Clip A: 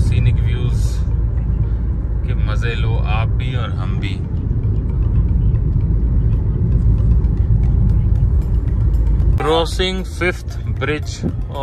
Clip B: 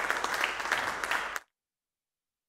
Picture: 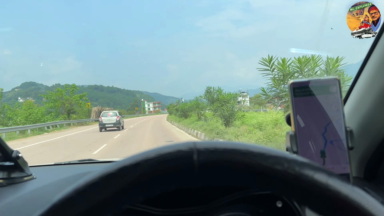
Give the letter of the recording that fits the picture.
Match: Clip A